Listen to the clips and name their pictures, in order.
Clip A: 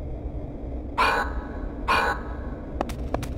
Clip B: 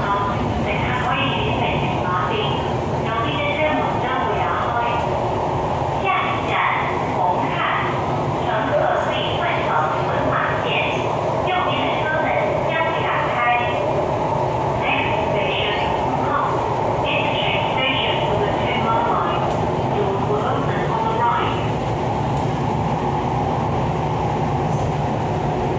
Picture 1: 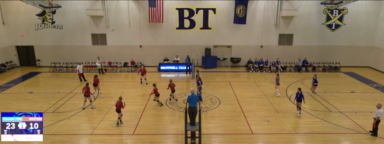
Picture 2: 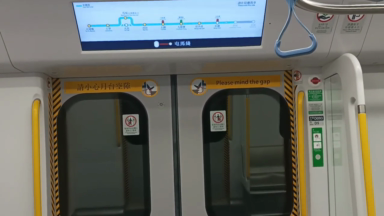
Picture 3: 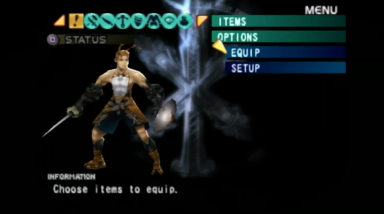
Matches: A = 3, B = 2